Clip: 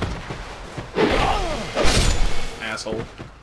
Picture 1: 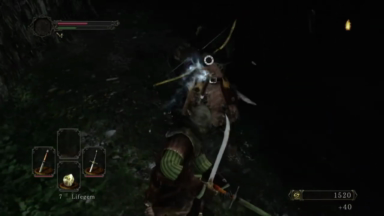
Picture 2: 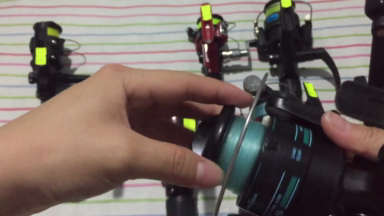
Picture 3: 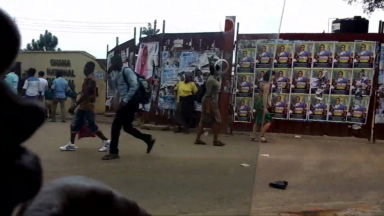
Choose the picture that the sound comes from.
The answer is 1